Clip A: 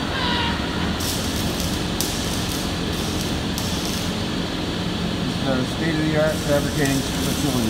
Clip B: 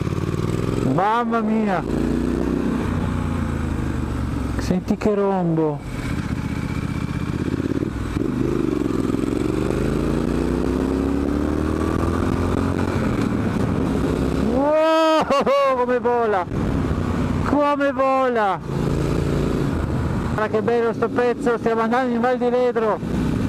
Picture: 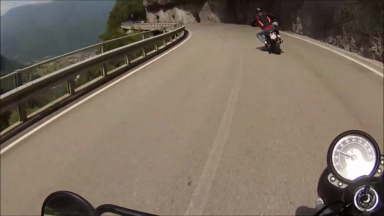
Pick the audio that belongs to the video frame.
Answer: B